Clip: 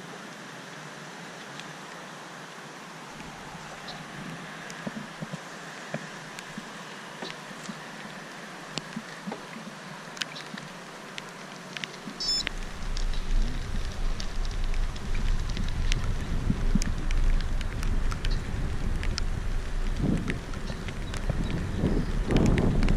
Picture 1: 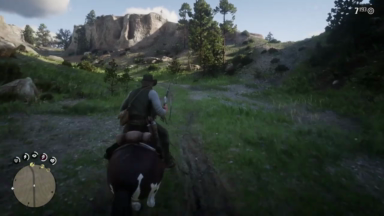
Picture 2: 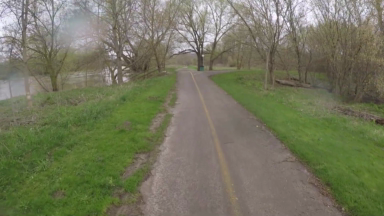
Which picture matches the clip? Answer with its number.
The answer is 2